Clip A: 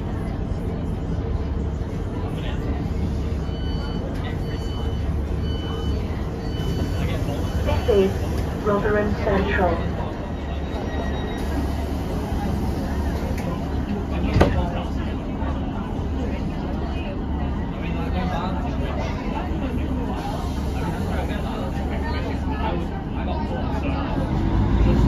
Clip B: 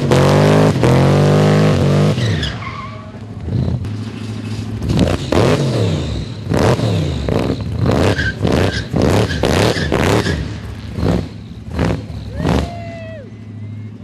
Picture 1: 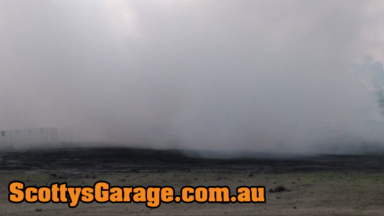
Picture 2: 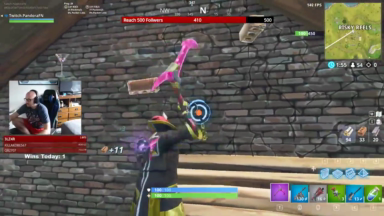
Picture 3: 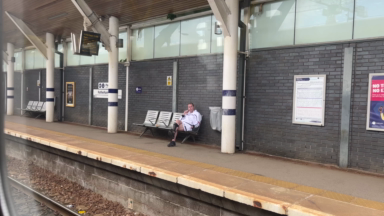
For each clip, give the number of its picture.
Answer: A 3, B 1